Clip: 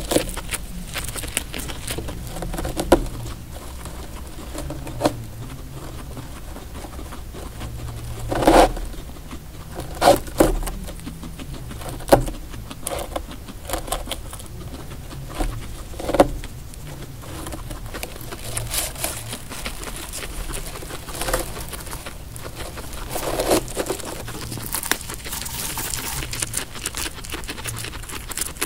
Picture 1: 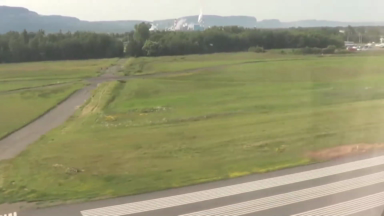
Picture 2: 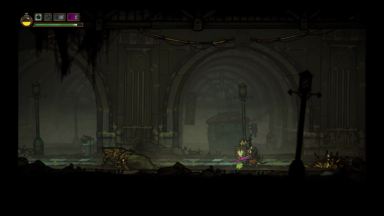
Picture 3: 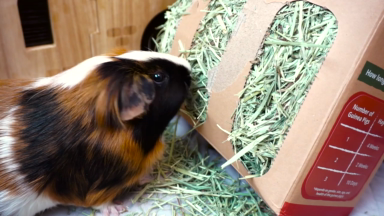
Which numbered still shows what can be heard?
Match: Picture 3